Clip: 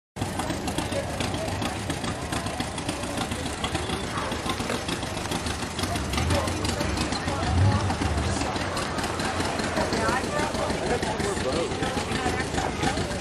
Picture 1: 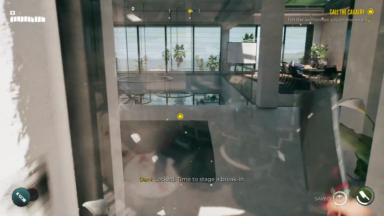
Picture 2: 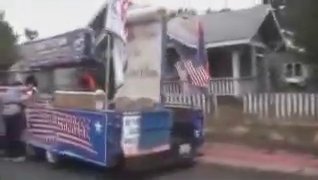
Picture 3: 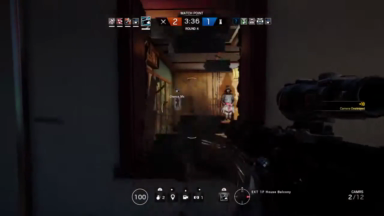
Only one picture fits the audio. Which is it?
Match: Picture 2